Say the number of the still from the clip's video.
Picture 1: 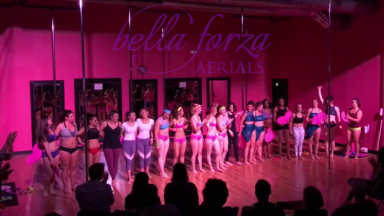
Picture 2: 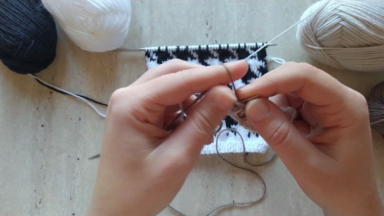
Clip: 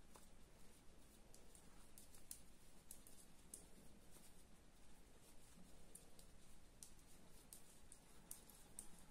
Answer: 2